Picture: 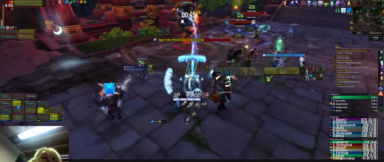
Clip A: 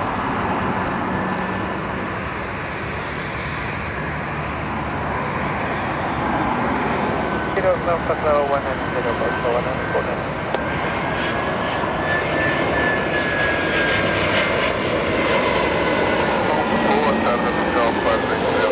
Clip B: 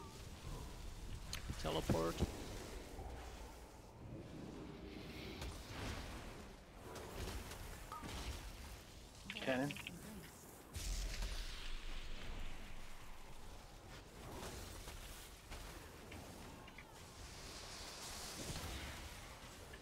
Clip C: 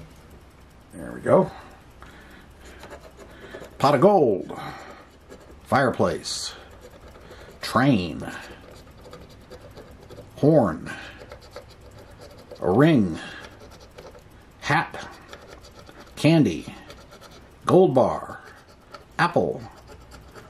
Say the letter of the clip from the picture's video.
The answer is B